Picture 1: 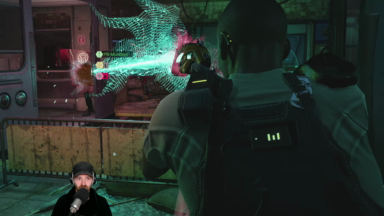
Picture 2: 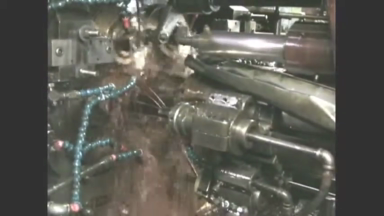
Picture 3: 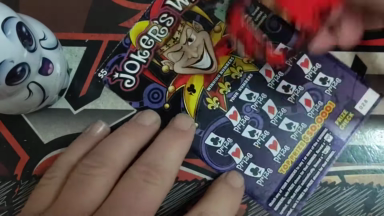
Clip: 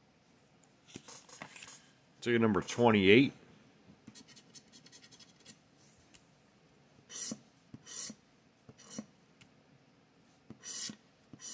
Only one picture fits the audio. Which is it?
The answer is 3